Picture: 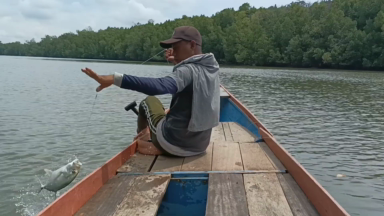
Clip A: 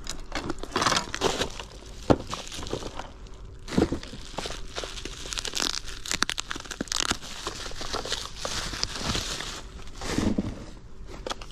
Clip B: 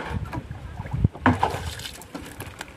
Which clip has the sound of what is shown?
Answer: B